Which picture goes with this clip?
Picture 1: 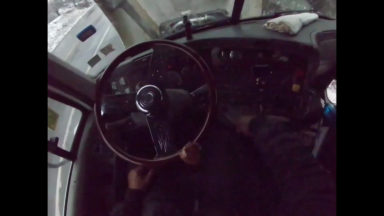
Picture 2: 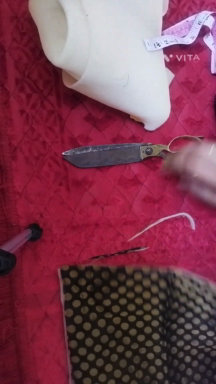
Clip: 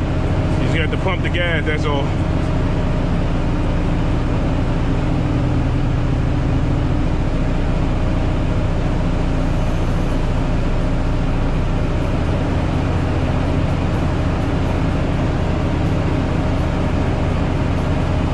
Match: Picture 1